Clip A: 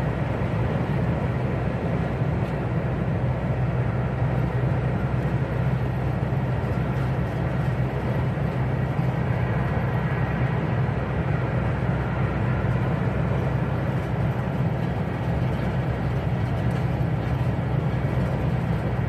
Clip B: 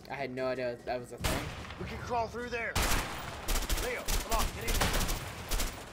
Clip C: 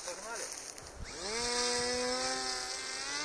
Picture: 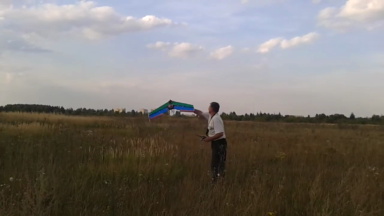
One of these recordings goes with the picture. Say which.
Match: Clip C